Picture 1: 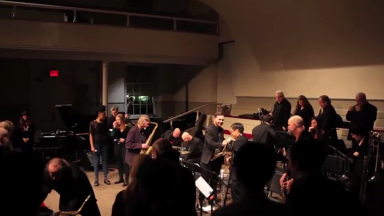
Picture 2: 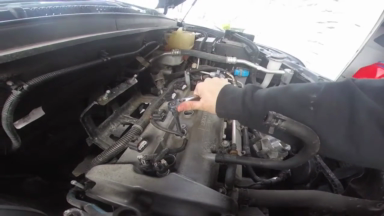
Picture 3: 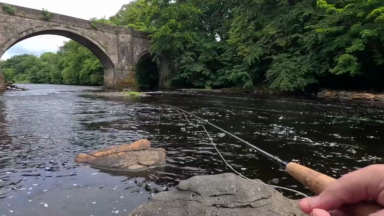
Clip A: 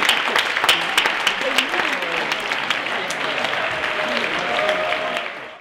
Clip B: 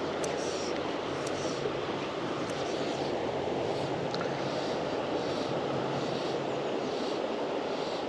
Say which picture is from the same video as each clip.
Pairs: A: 1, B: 3